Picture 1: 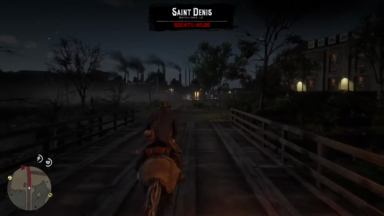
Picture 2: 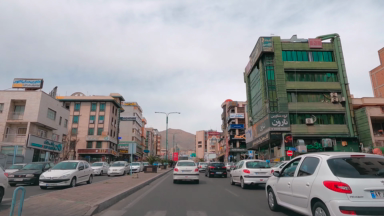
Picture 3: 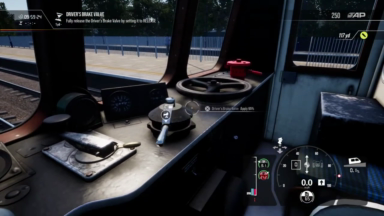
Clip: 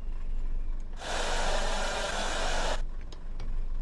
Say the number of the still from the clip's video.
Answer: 3